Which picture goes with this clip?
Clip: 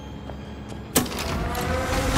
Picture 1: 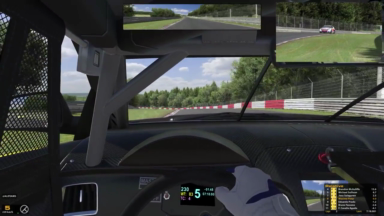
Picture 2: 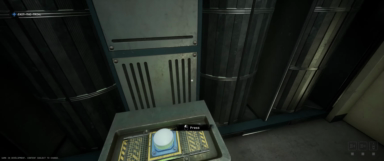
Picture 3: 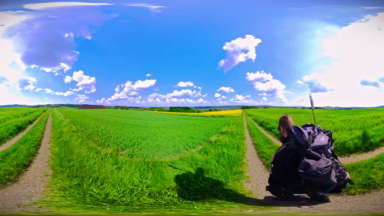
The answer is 2